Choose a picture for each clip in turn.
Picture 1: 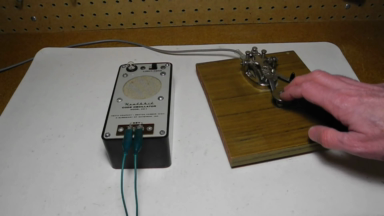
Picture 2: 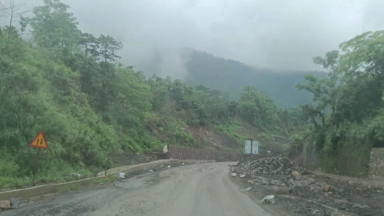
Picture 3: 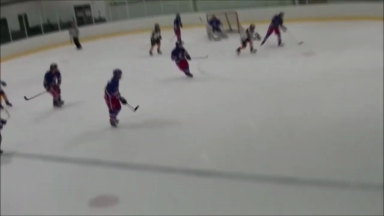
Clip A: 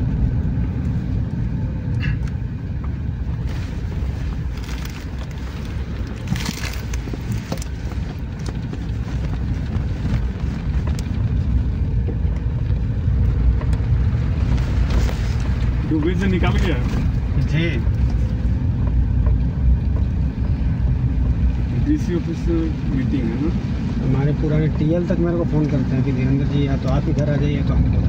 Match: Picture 2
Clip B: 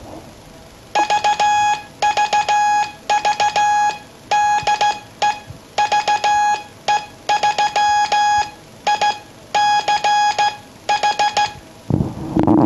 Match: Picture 1